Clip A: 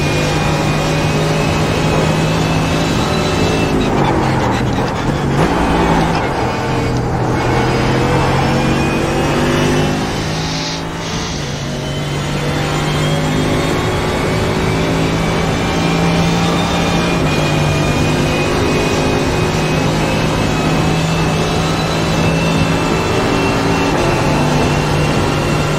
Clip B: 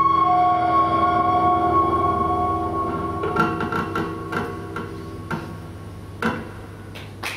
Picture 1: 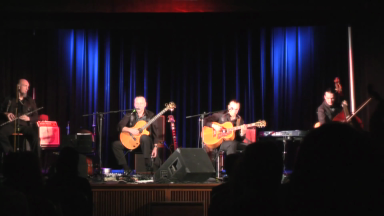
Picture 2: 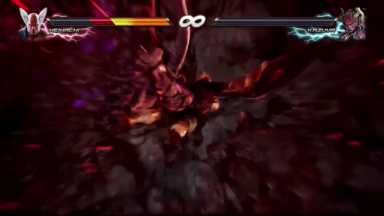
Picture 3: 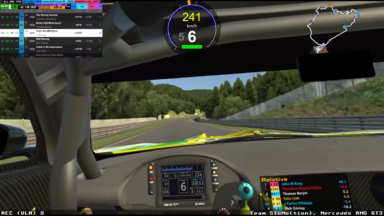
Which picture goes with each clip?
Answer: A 3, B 1